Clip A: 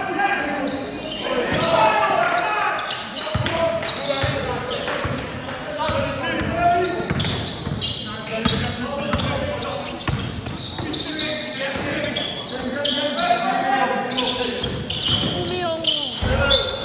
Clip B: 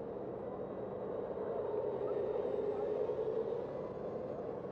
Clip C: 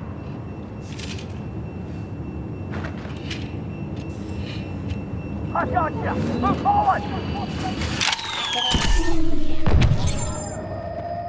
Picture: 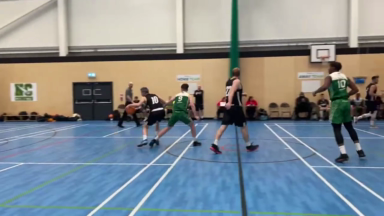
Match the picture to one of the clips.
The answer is A